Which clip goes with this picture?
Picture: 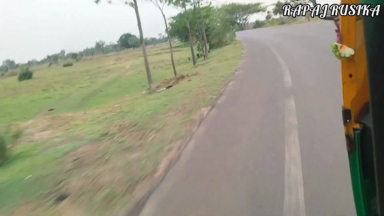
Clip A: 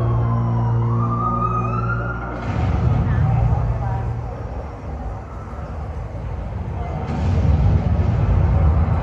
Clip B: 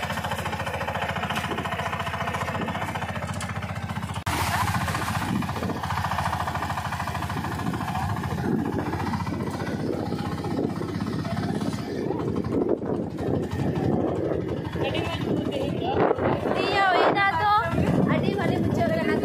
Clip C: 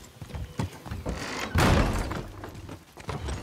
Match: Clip B